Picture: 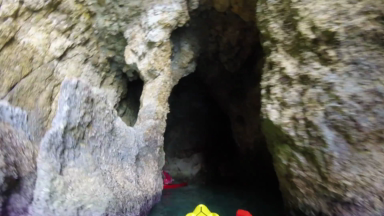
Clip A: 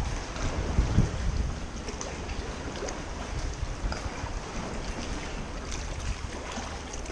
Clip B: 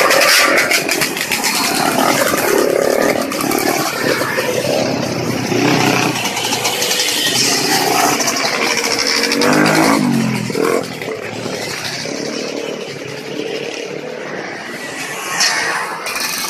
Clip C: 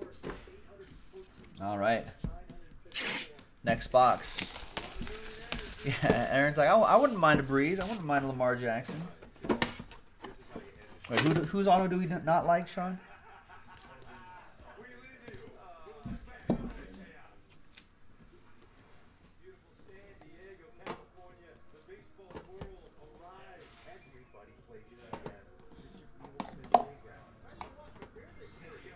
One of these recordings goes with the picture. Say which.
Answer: A